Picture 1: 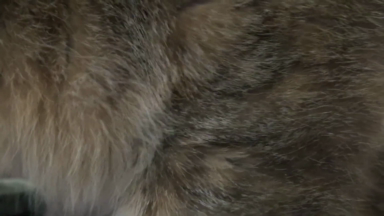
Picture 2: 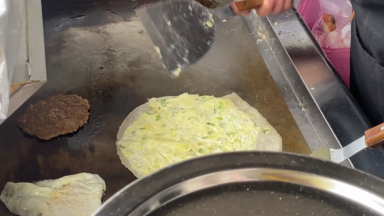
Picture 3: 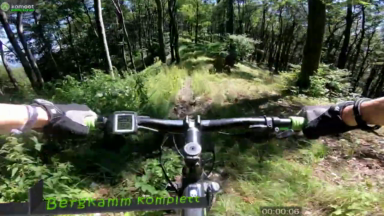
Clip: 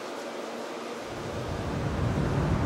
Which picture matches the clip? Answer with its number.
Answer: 1